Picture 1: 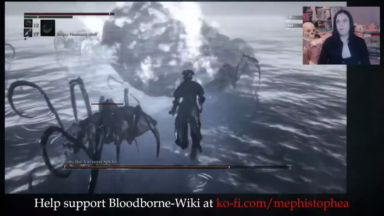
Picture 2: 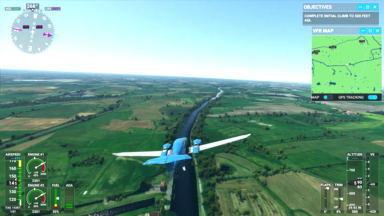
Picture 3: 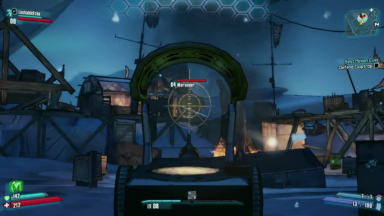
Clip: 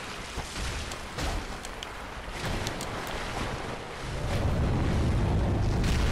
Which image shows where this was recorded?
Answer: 1